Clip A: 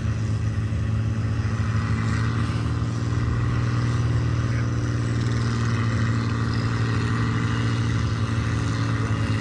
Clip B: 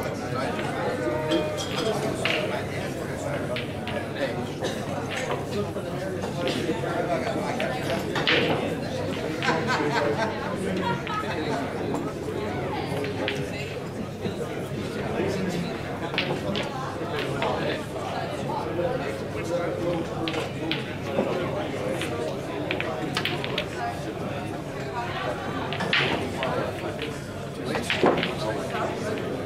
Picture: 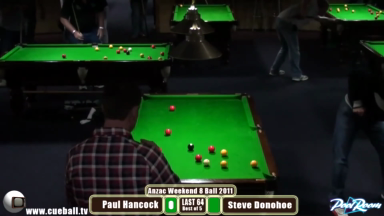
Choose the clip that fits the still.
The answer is B